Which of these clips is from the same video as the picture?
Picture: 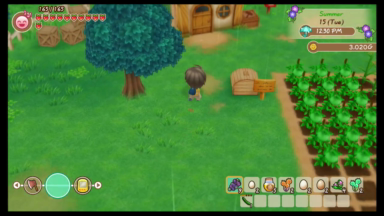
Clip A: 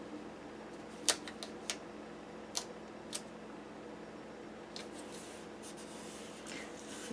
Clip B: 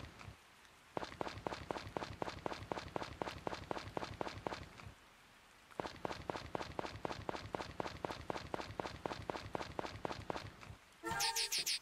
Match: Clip B